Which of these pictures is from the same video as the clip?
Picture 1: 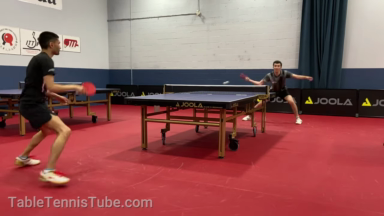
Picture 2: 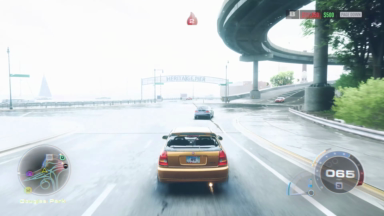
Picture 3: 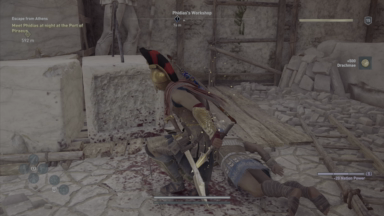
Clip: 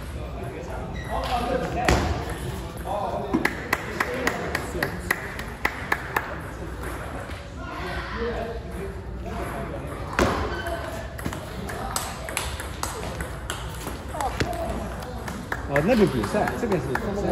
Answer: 1